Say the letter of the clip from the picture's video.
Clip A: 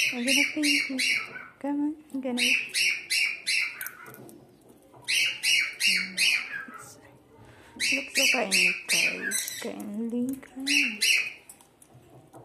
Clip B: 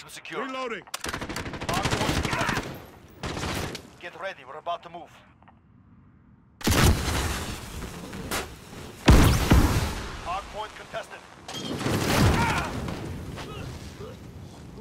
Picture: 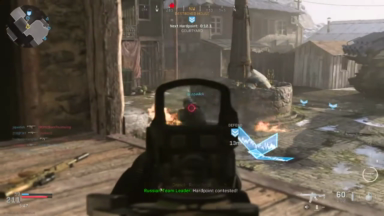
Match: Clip B